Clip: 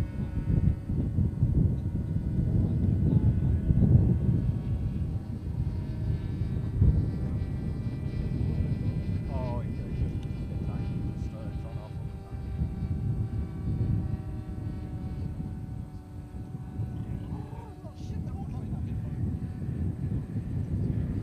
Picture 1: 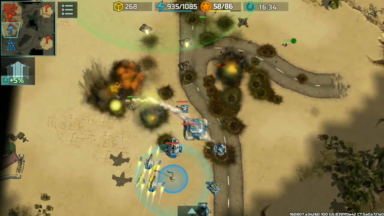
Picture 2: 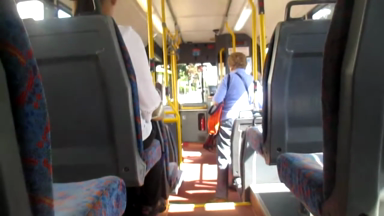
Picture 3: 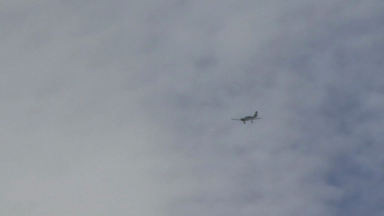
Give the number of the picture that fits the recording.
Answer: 3